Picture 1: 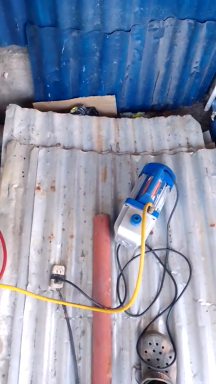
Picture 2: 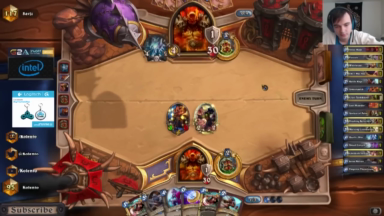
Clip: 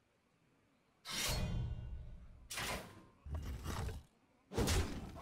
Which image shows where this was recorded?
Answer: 2